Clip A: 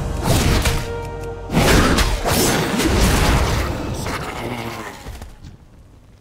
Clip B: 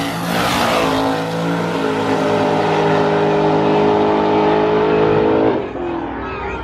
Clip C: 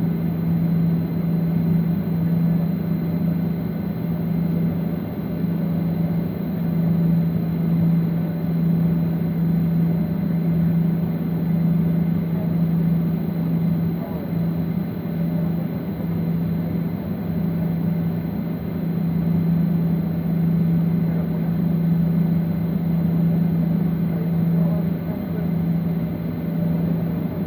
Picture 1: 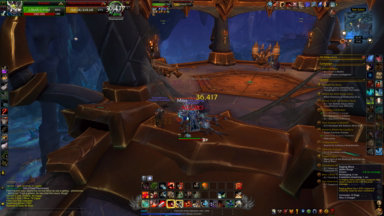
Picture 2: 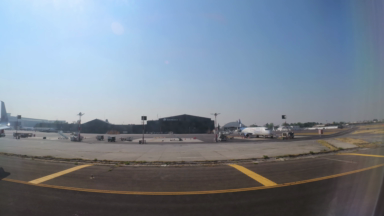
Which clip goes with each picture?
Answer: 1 A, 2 C